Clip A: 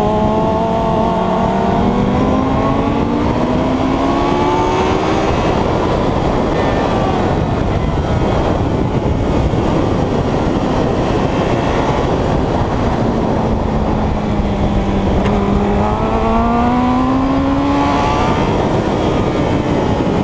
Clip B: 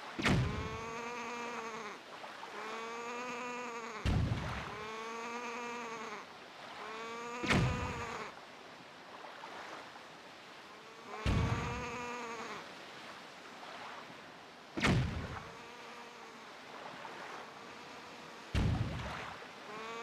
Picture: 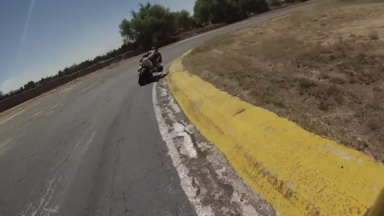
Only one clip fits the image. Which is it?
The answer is A